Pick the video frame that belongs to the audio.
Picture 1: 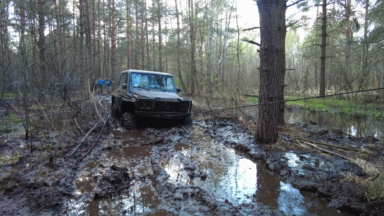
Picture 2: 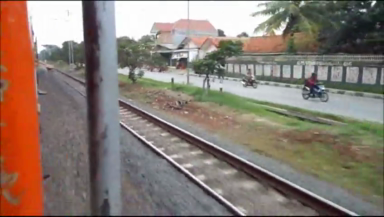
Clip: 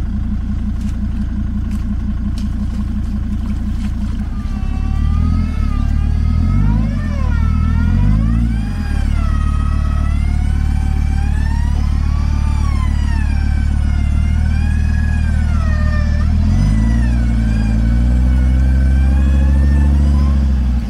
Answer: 1